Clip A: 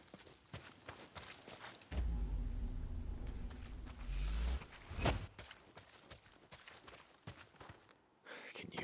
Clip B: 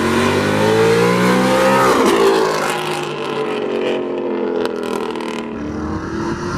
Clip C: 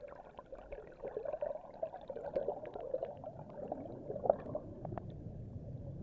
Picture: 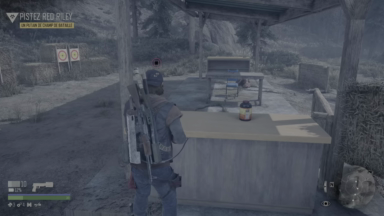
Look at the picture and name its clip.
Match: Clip A